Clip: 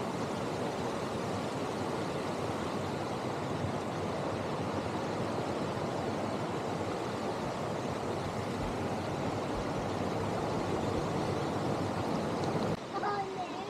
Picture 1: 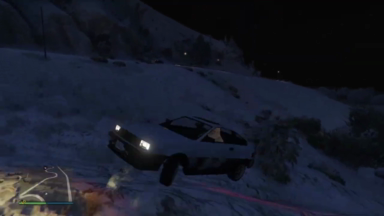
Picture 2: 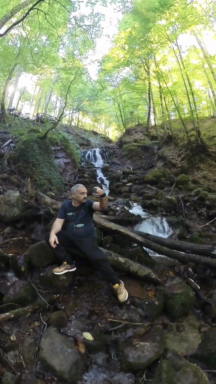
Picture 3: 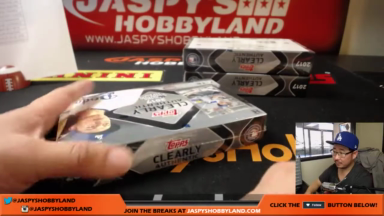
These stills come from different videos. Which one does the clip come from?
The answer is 2